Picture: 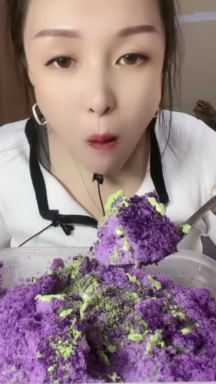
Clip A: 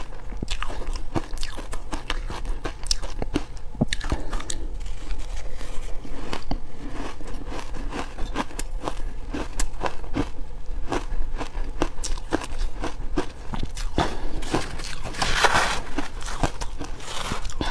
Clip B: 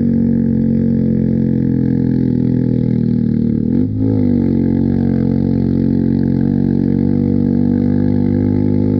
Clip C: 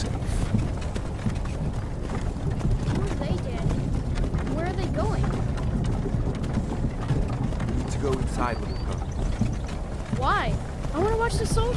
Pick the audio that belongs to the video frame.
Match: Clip A